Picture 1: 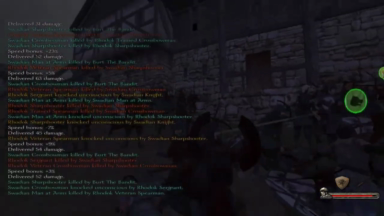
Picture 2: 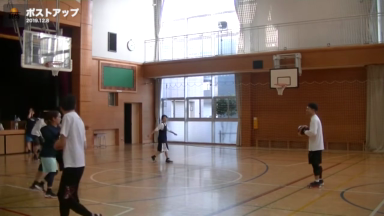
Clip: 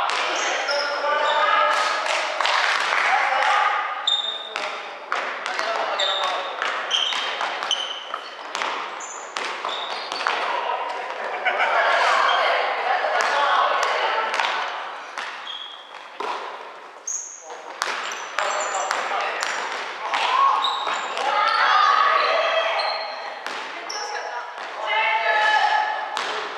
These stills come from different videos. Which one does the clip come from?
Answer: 2